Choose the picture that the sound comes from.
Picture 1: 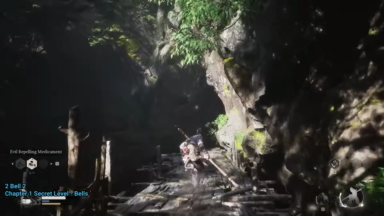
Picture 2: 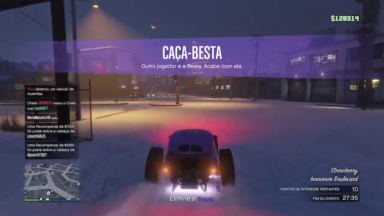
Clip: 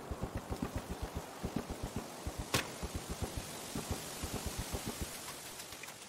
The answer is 1